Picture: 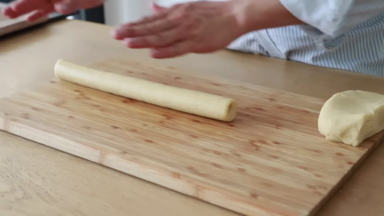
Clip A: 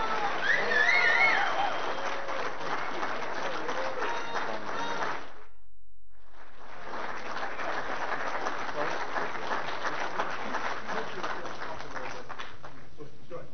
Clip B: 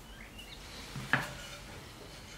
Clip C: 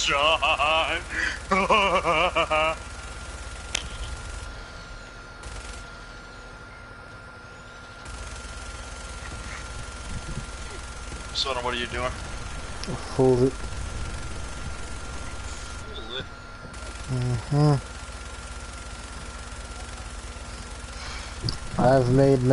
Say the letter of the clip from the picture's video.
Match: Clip B